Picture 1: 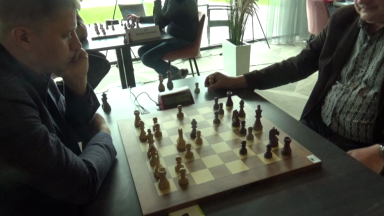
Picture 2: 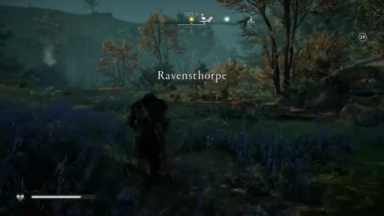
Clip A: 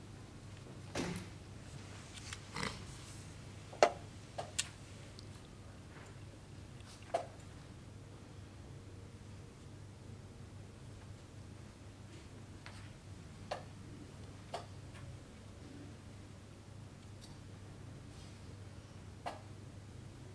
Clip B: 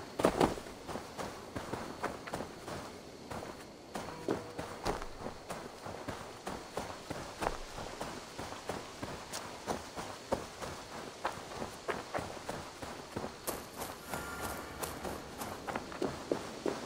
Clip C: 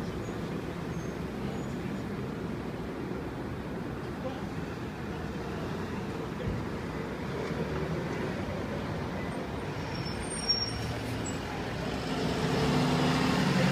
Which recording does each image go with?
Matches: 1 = A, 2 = B